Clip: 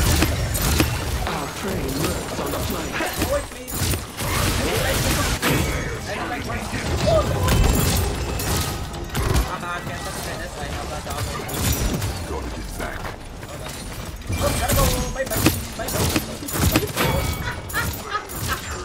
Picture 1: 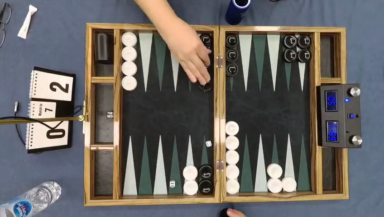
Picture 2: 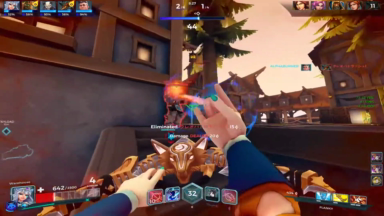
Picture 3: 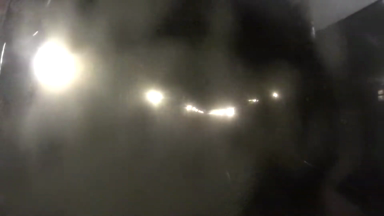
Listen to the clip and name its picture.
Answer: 2